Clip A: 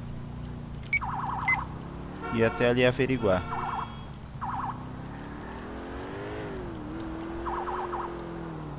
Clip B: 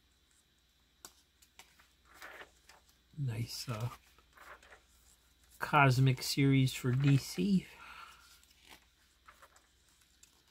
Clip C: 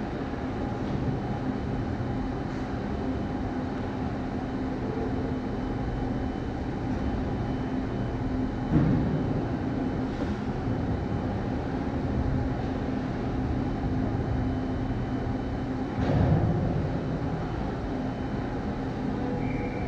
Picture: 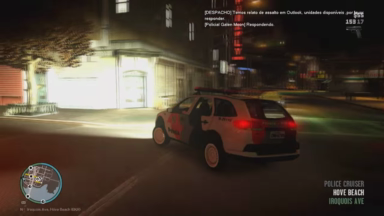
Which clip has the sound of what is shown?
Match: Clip A